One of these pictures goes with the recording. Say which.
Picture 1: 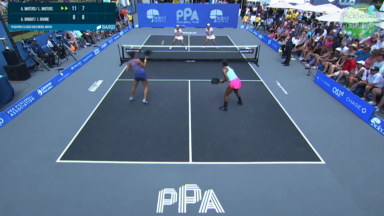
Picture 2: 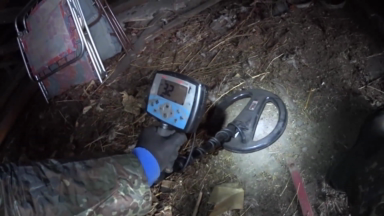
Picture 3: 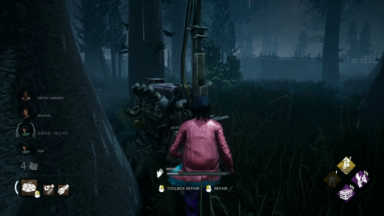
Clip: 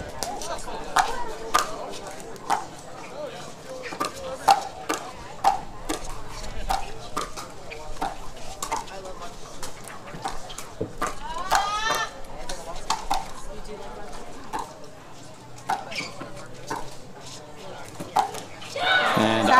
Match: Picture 1